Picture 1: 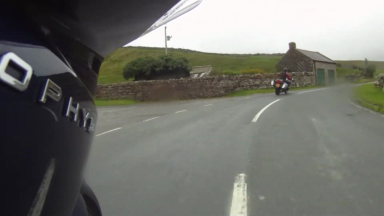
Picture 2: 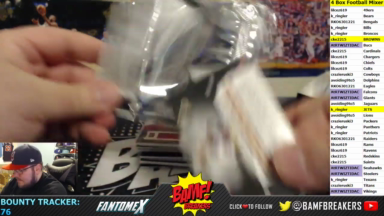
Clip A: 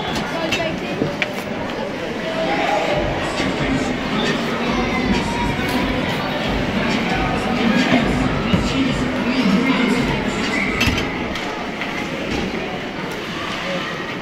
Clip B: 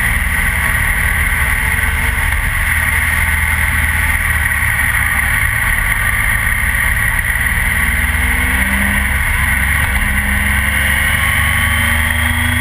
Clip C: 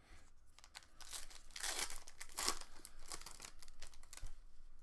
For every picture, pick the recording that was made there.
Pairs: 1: B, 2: C